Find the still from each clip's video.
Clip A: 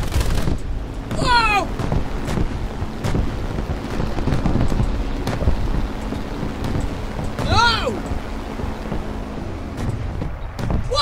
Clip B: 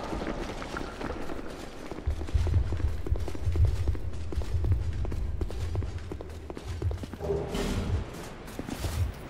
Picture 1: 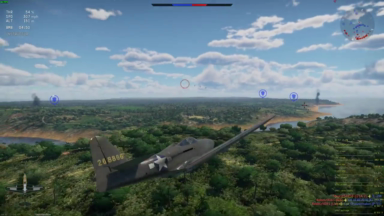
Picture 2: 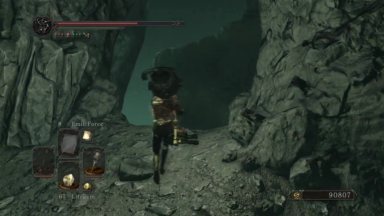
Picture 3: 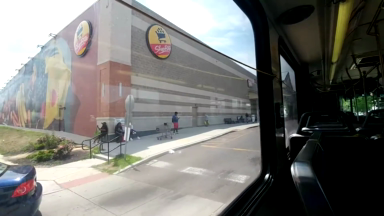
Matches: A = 1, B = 2